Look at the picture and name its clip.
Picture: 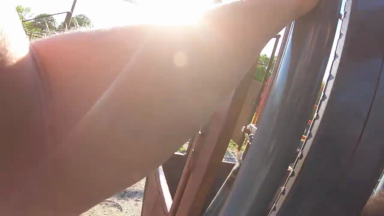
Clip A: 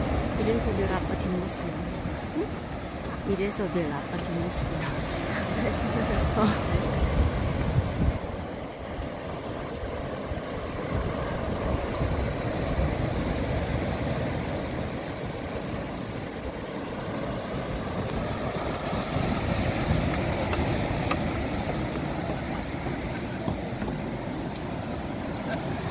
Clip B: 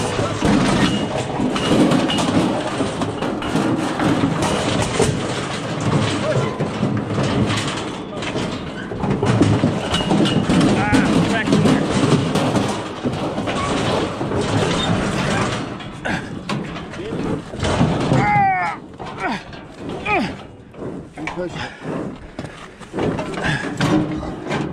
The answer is B